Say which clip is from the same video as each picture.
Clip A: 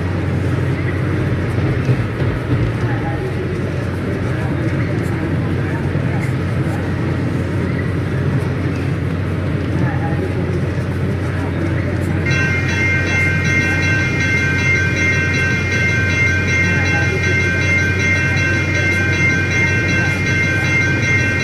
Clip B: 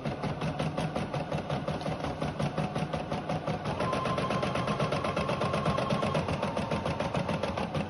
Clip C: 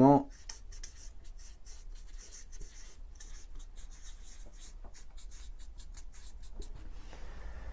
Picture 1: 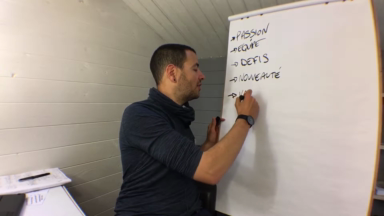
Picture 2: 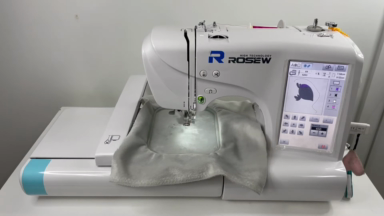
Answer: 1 C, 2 B